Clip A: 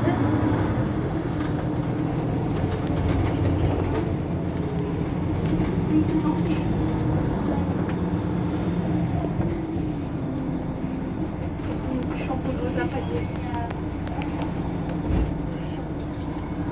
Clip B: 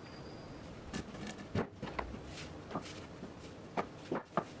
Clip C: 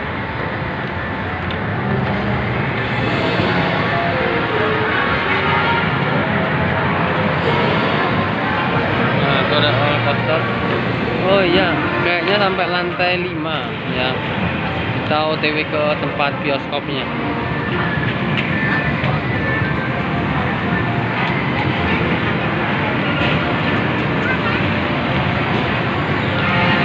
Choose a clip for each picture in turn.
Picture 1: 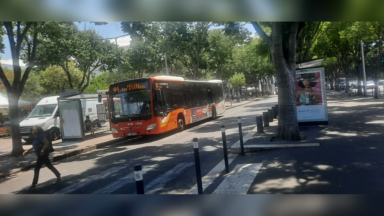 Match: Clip A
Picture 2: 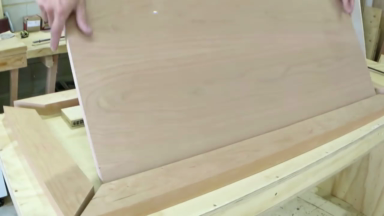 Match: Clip B